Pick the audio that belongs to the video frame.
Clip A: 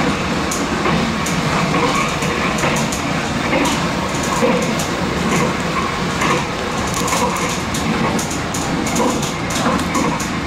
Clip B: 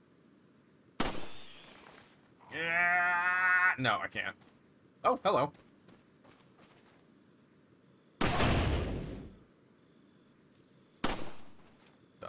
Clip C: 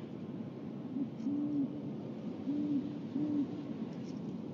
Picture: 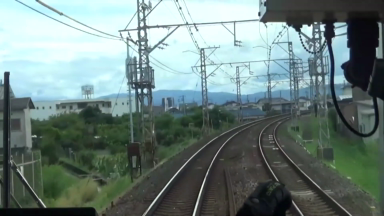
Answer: A